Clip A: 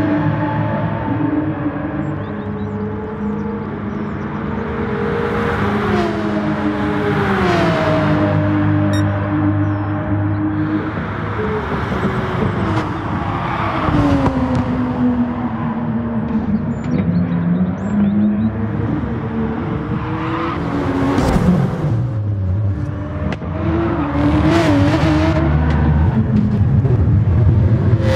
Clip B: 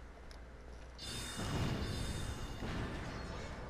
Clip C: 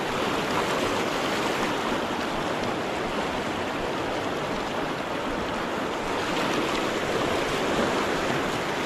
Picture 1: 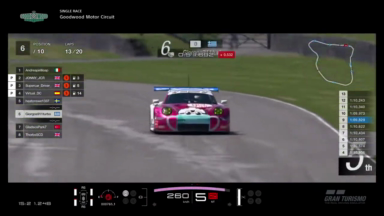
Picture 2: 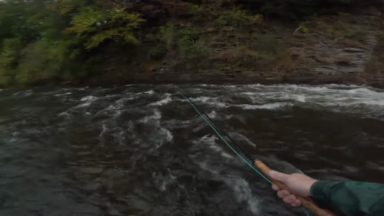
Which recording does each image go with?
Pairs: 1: A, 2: C